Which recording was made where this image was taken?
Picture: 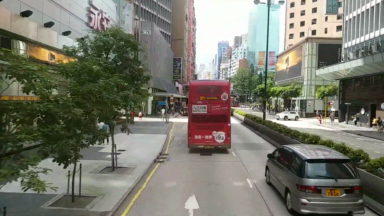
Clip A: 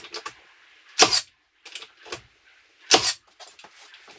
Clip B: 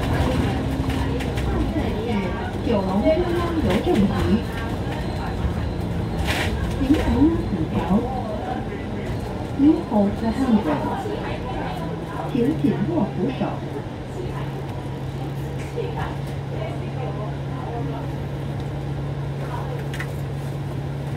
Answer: B